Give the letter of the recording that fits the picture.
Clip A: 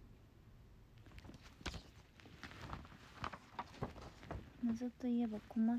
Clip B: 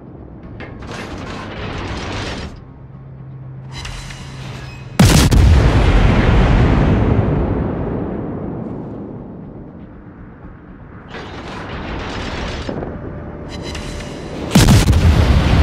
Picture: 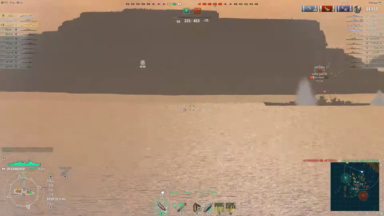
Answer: B